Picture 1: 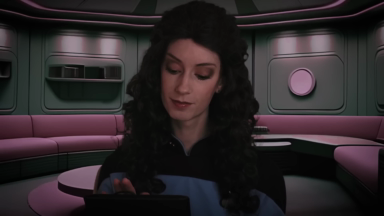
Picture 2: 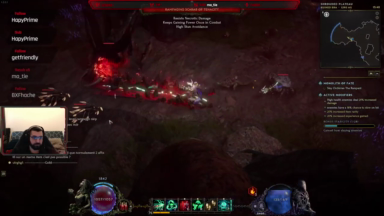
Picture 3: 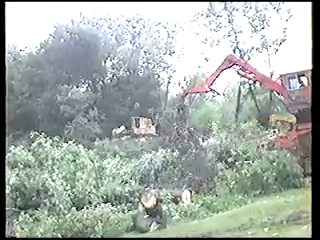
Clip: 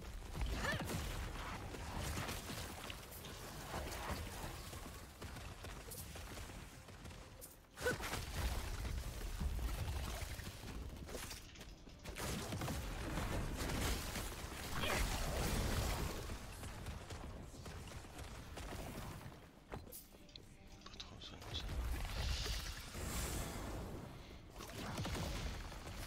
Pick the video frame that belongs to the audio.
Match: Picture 2